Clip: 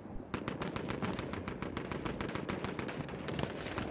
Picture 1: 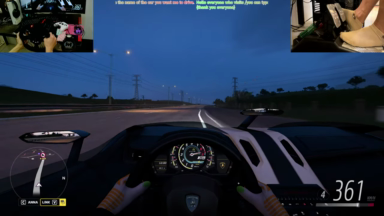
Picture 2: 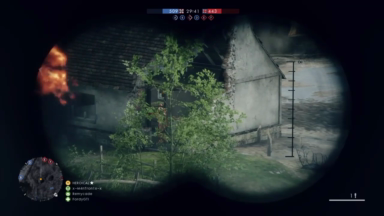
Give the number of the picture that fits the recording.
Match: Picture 2